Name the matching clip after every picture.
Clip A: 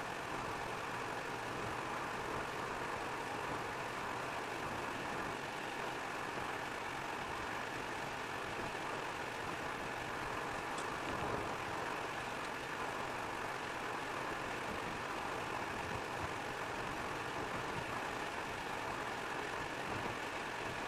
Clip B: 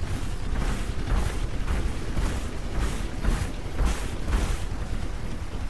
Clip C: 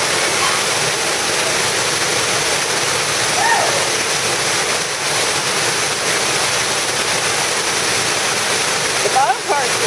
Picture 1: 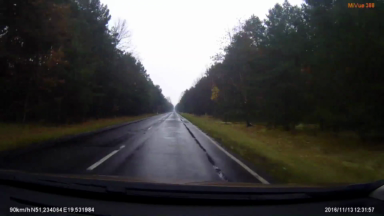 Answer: A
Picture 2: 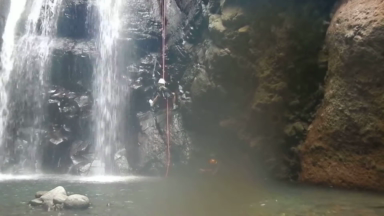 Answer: C